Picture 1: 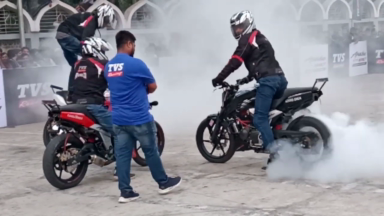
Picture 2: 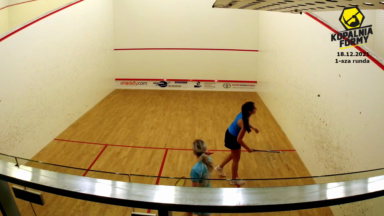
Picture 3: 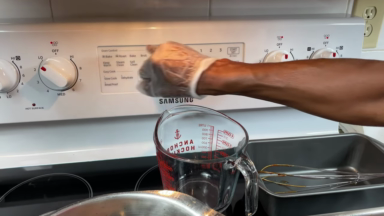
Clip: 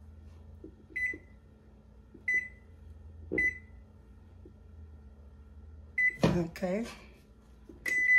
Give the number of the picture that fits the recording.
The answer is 3